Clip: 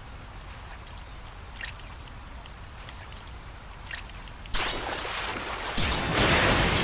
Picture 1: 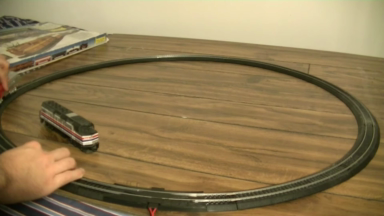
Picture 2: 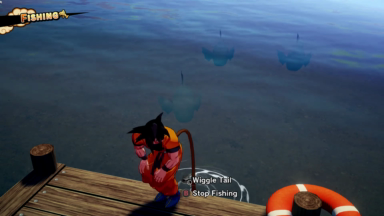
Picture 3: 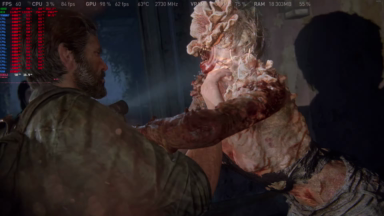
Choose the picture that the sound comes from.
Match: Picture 2